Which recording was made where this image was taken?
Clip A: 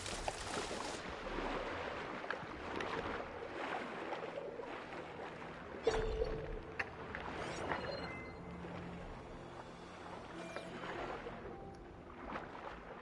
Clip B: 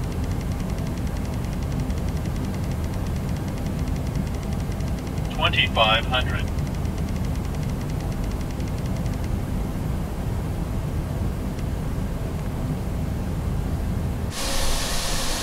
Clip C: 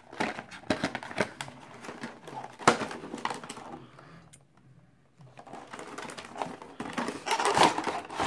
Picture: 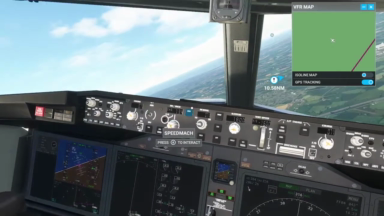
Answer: B